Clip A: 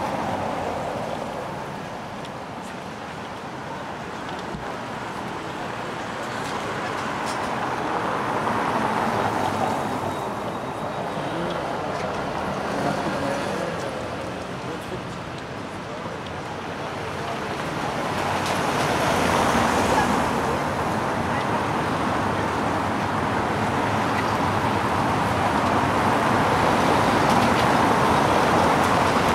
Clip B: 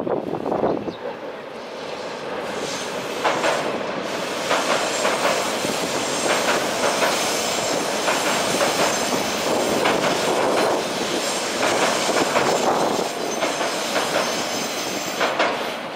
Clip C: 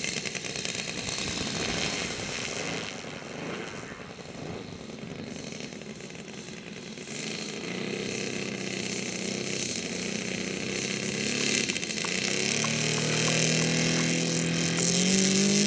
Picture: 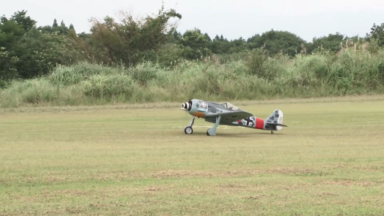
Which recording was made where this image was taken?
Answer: C